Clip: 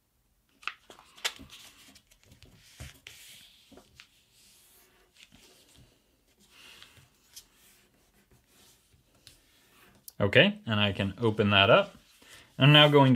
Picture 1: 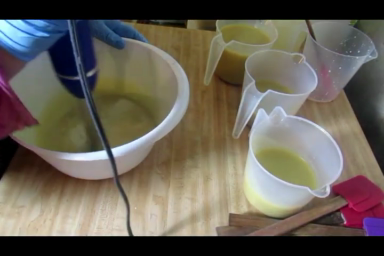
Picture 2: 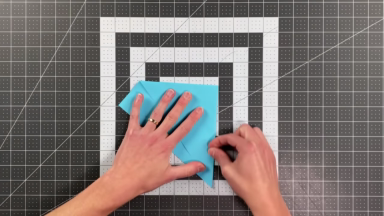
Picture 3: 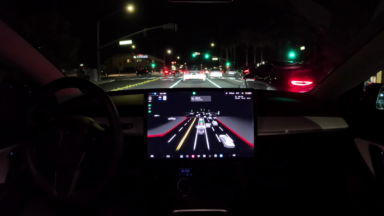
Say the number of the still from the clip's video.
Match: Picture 2